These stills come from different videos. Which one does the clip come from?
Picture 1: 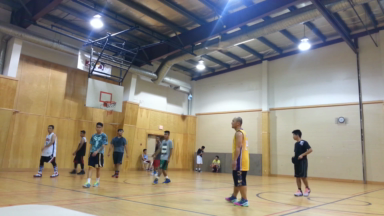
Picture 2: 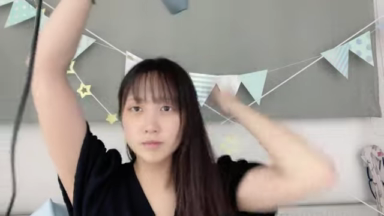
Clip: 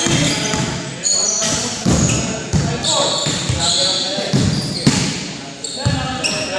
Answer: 1